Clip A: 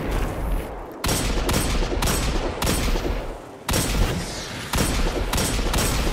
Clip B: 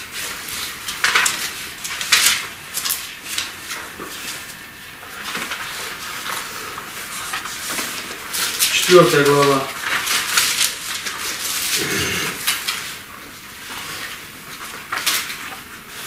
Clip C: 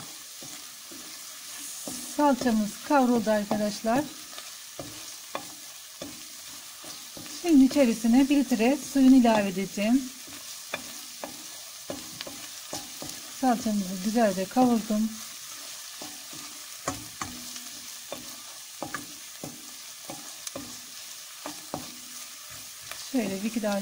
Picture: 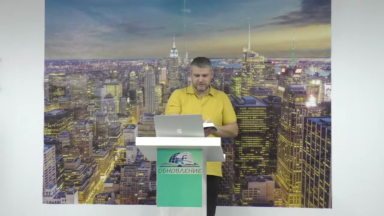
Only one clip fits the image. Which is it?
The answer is B